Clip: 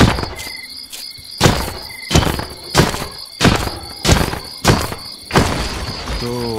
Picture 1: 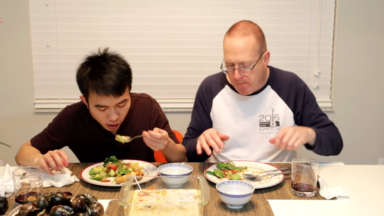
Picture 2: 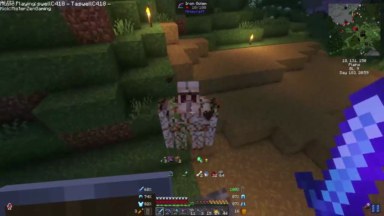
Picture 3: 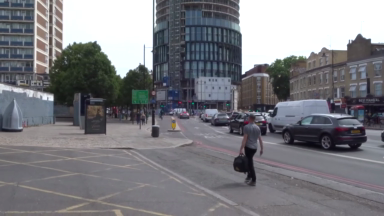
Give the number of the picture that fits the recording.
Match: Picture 2